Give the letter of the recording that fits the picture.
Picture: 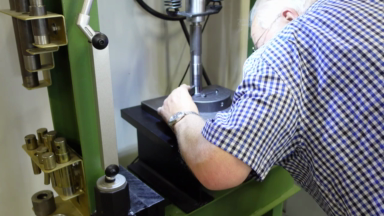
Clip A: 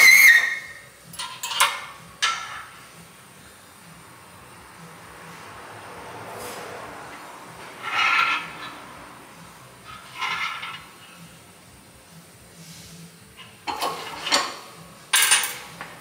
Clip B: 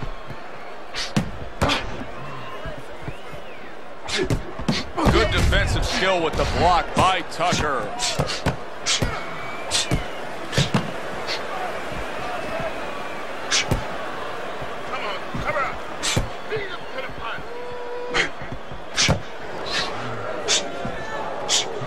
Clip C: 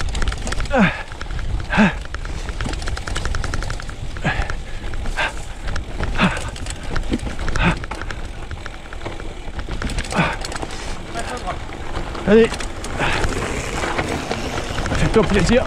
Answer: A